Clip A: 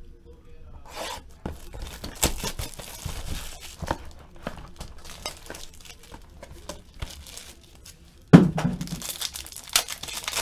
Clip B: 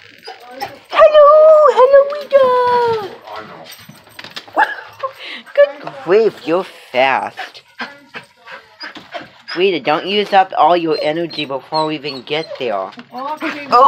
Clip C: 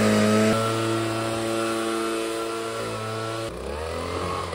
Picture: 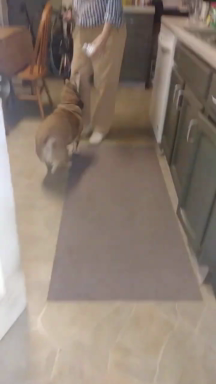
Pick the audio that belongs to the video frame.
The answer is B